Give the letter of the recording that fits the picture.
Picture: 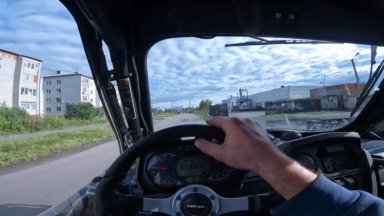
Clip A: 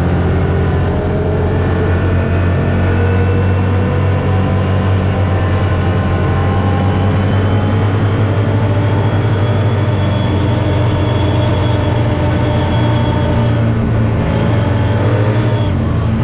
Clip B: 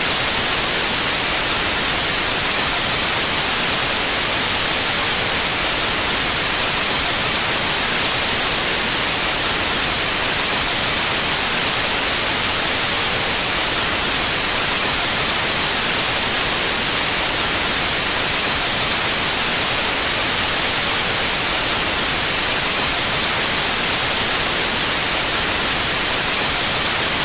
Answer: A